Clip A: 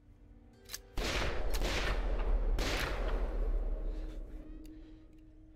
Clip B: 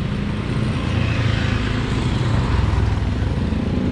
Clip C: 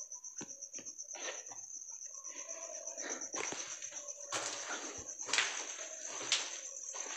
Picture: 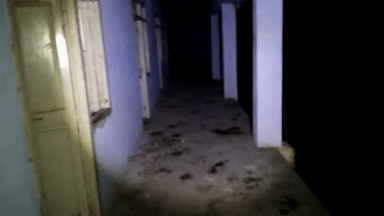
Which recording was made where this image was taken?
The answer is C